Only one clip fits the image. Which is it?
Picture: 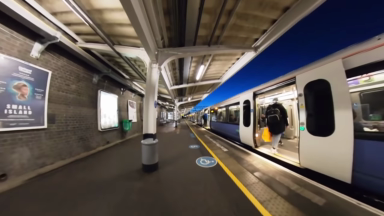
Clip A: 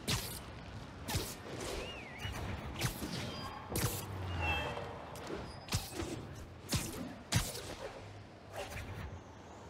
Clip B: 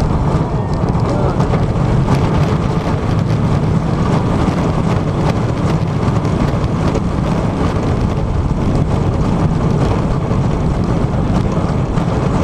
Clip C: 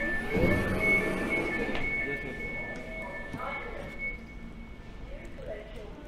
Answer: C